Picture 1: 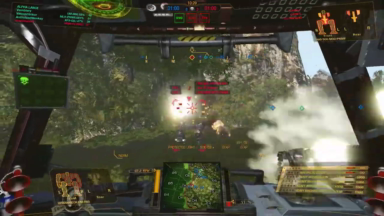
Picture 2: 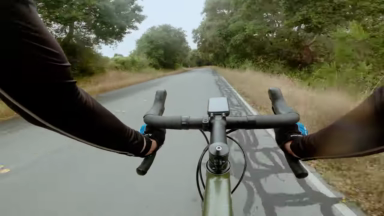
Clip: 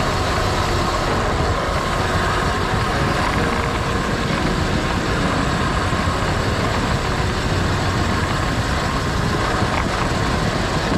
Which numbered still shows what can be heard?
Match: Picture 2